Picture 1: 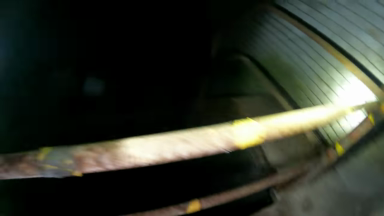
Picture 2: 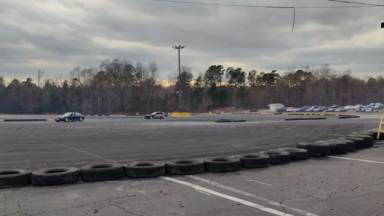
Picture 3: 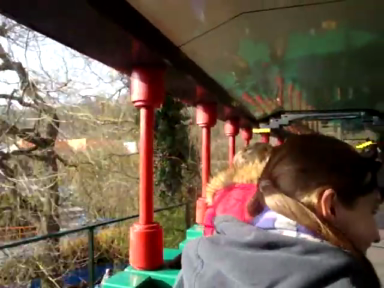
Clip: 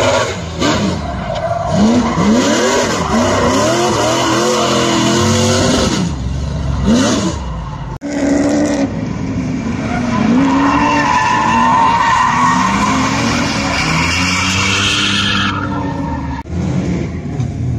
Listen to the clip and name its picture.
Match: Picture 2